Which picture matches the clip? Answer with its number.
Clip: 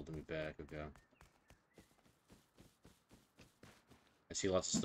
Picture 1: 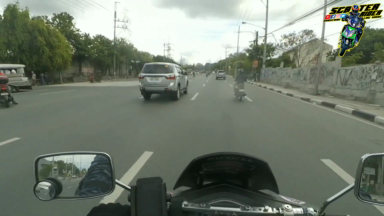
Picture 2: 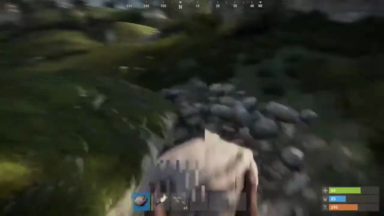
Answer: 2